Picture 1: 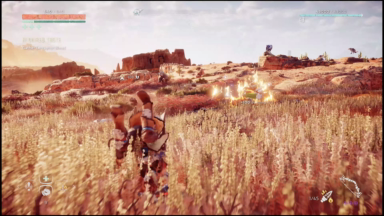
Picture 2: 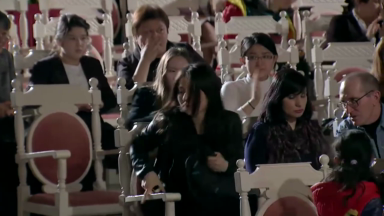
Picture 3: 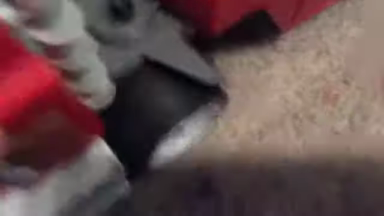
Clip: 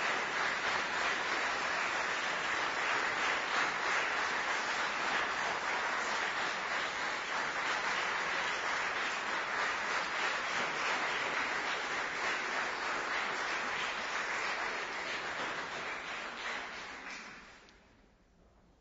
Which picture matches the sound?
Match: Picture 2